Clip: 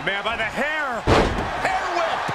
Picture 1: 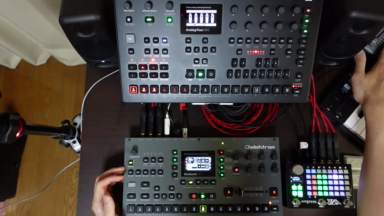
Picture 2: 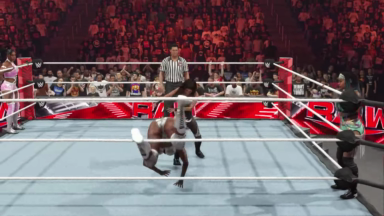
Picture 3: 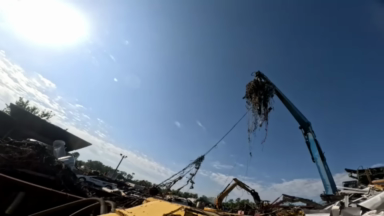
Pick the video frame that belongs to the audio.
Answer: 2